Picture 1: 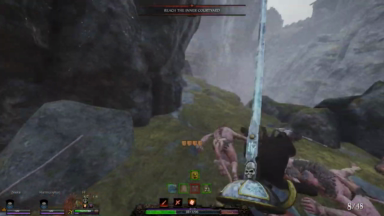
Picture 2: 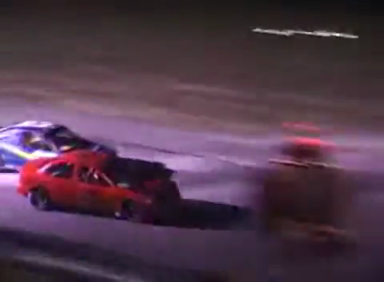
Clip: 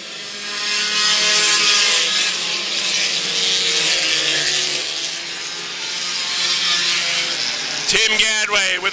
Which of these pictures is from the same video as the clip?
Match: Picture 2